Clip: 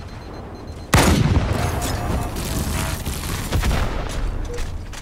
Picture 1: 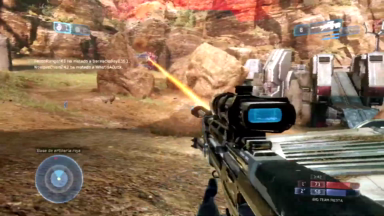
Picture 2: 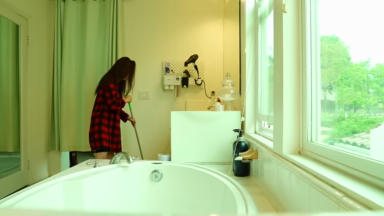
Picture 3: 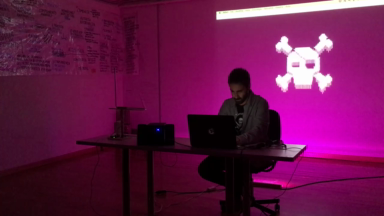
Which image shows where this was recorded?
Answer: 1